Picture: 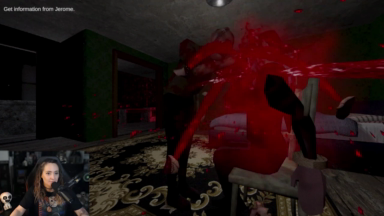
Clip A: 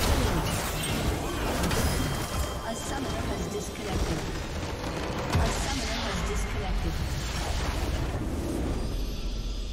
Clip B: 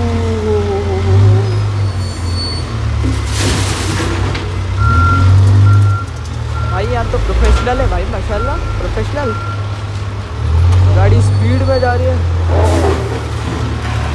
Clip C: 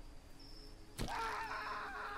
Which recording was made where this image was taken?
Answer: C